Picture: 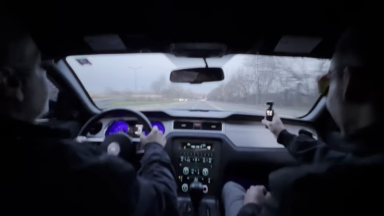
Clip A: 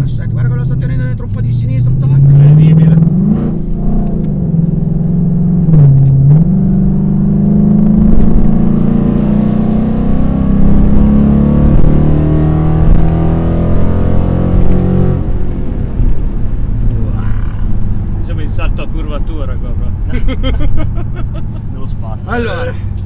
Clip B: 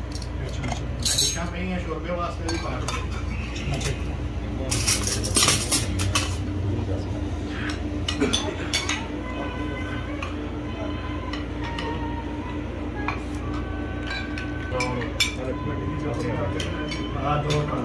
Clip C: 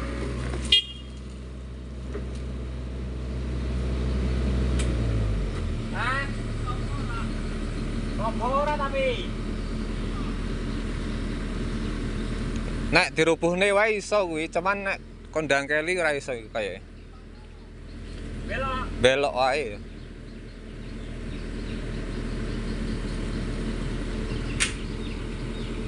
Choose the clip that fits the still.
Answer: A